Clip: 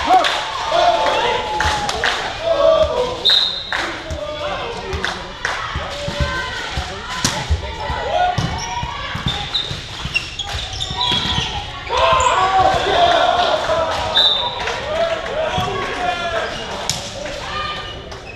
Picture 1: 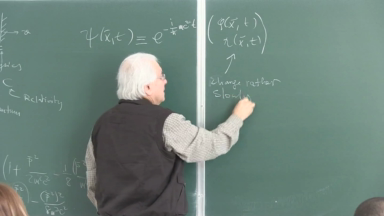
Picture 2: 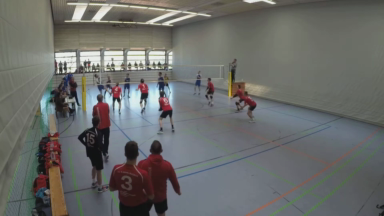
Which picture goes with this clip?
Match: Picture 2